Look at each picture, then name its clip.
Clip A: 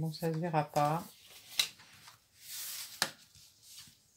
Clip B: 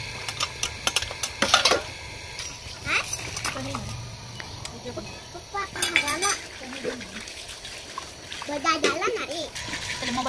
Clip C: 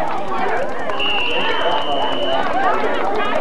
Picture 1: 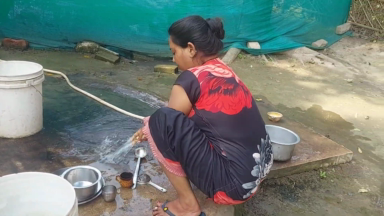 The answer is B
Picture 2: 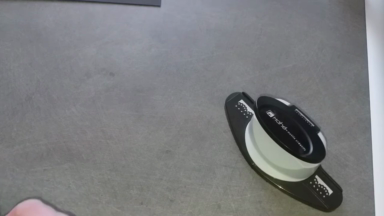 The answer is A